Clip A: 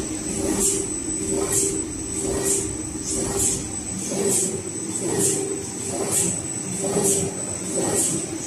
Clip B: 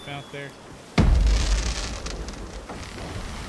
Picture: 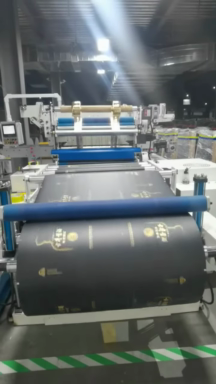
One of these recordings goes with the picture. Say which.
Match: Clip A